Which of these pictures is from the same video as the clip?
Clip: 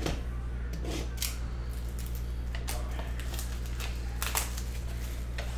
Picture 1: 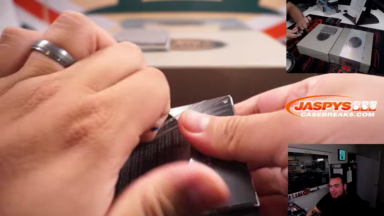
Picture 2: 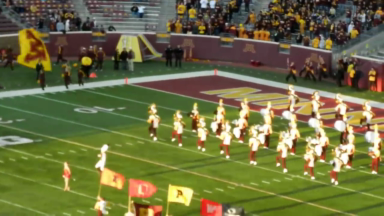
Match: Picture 1